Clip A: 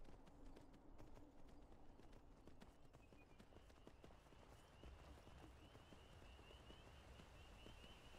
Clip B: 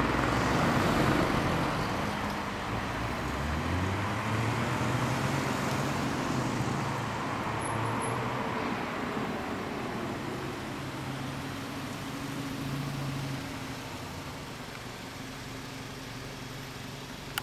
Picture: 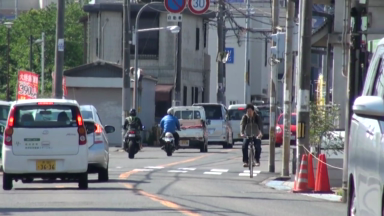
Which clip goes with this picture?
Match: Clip B